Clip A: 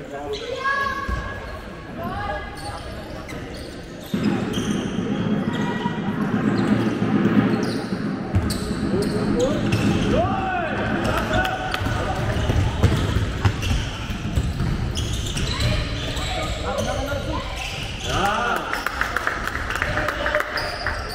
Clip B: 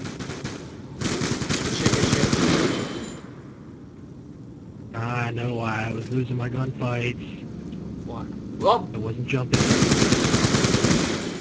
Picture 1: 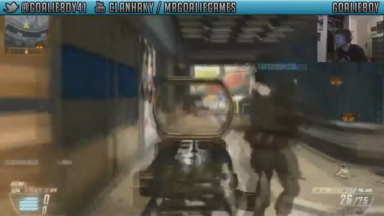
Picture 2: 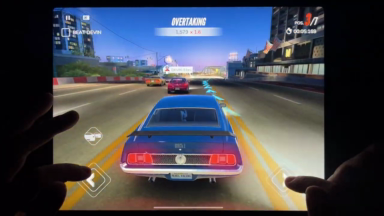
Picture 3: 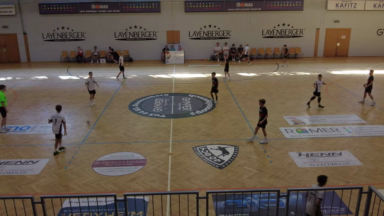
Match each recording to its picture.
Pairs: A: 3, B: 1